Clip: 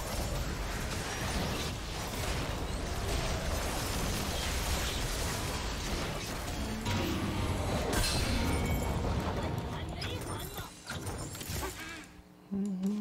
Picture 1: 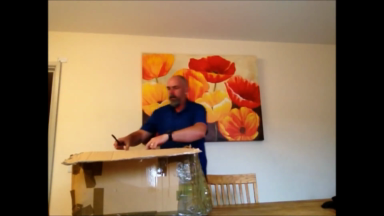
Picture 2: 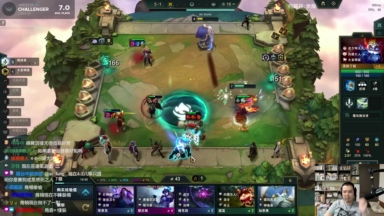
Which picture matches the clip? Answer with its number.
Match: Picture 2